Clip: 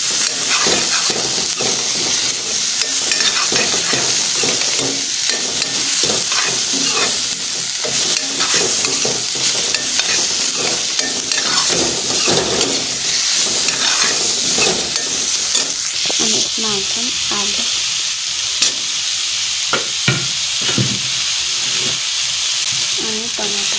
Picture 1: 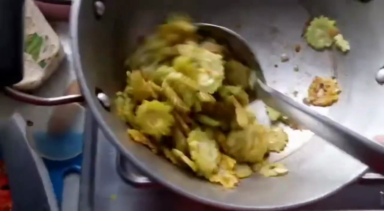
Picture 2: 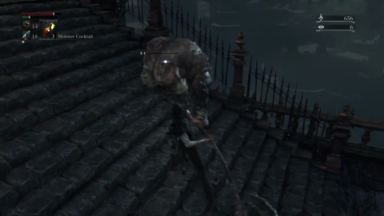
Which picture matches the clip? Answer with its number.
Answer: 1